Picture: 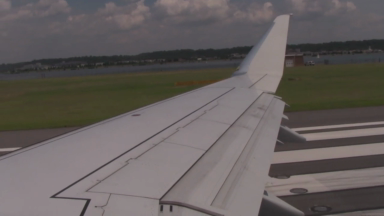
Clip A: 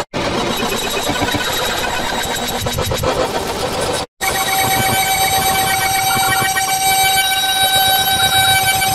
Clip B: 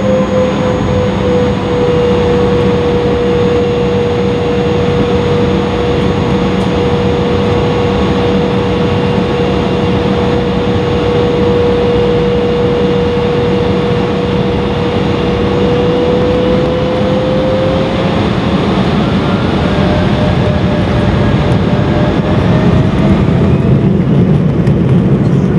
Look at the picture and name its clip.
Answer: B